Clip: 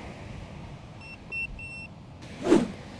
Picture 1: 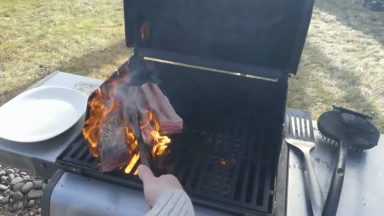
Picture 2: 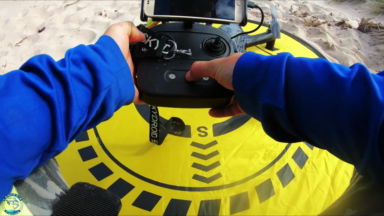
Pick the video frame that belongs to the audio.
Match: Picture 2